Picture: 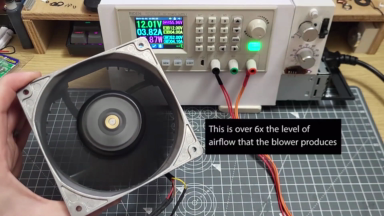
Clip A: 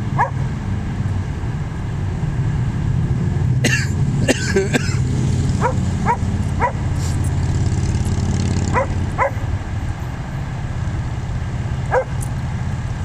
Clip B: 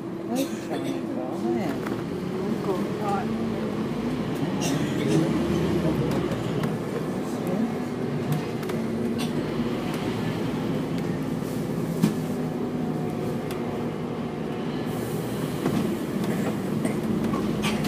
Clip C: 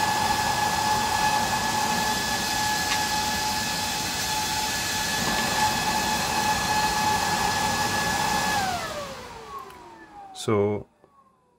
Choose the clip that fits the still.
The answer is C